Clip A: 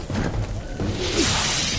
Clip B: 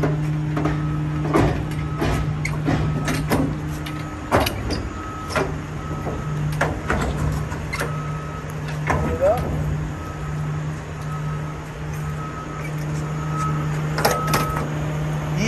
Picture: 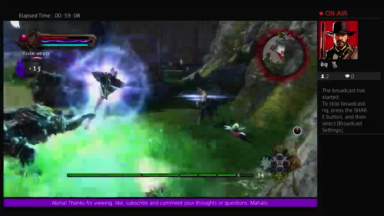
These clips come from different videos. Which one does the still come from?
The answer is A